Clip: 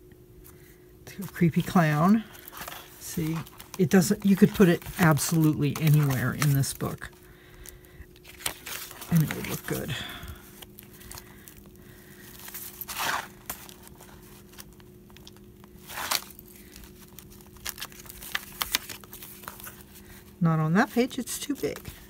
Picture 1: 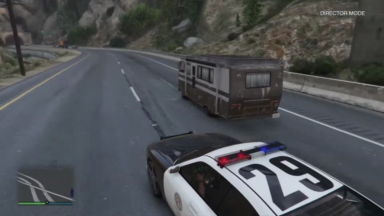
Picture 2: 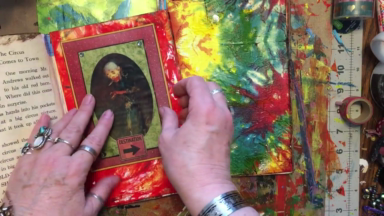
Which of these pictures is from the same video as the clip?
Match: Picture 2